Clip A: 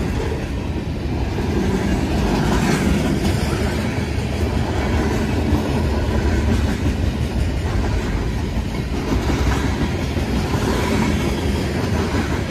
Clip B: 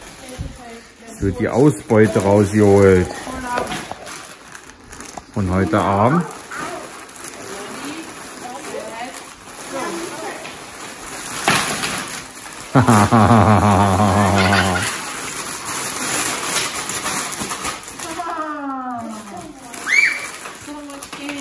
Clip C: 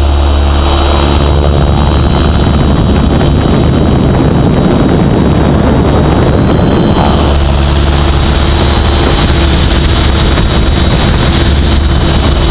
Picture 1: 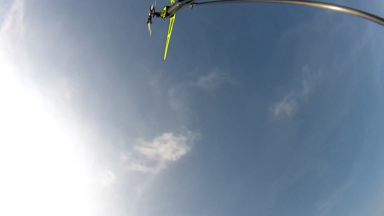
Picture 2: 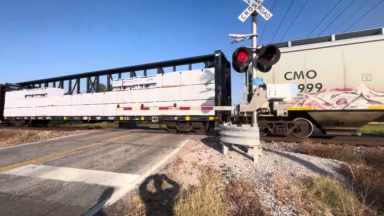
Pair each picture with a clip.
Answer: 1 C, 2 A